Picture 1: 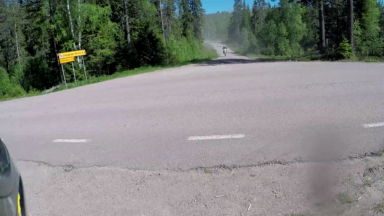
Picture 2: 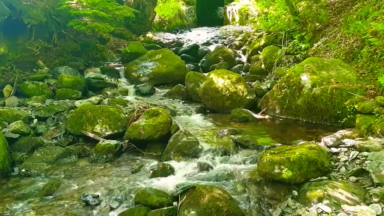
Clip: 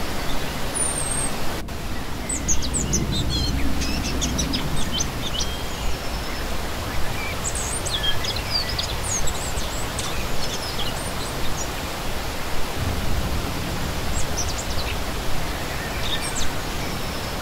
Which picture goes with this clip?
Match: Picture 2